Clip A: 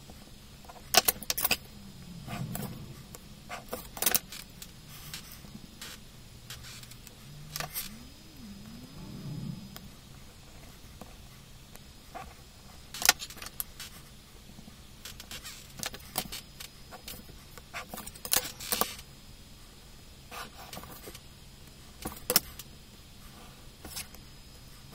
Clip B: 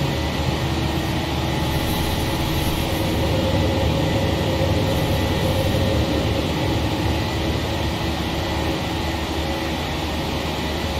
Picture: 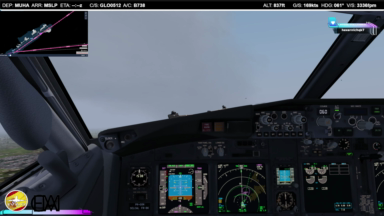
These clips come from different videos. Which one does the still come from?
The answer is B